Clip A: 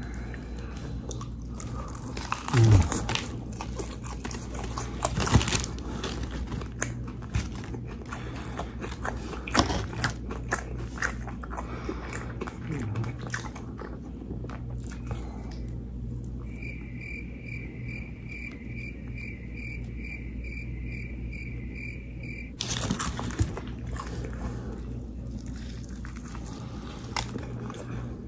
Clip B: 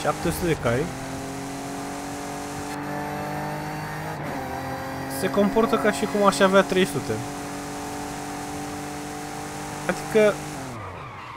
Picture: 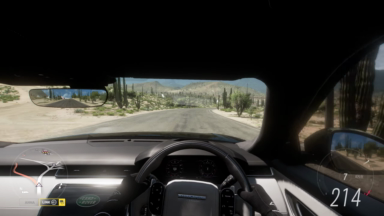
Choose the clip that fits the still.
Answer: B